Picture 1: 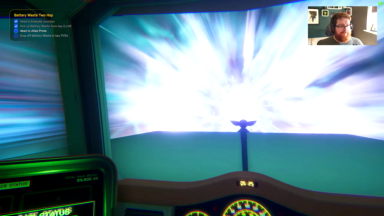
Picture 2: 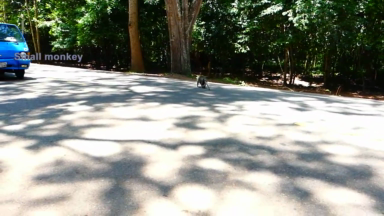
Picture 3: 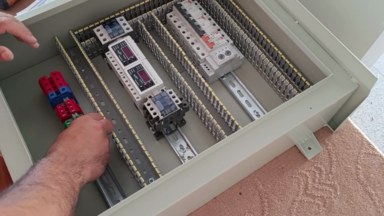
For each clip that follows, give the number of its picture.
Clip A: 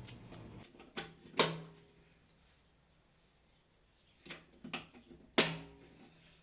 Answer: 3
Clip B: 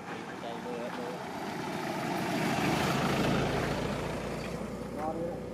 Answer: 2